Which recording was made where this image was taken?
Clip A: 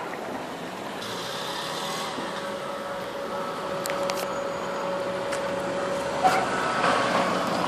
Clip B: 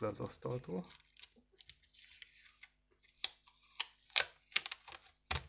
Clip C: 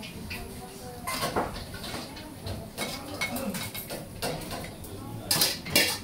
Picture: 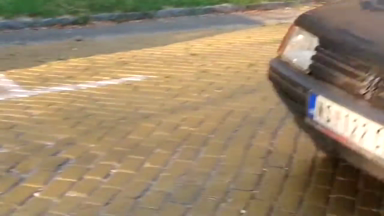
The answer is A